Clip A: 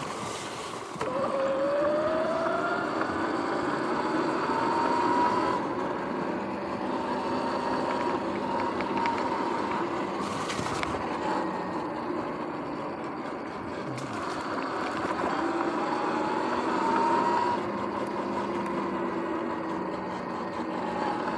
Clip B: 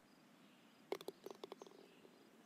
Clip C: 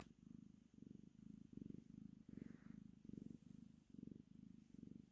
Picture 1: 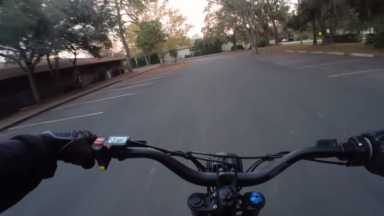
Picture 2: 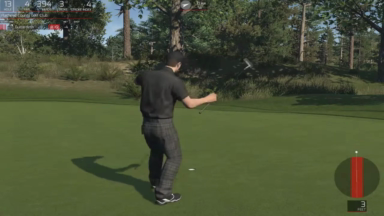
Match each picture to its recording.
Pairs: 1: A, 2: B